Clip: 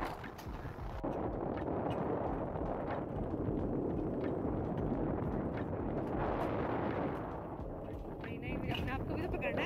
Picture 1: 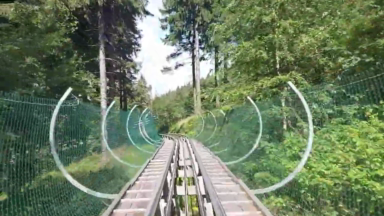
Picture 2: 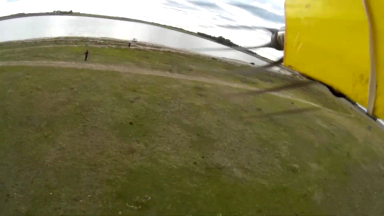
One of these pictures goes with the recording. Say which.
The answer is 1